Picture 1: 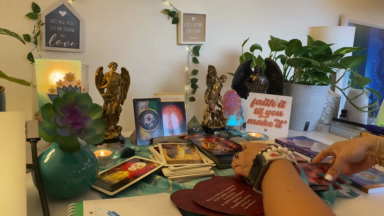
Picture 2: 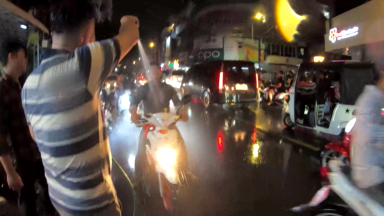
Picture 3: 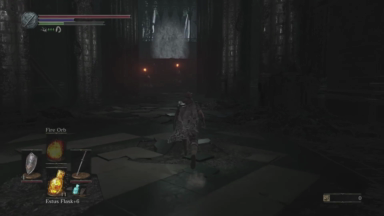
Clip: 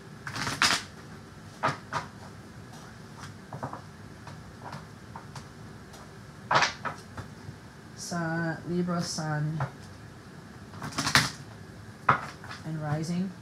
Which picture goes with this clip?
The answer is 1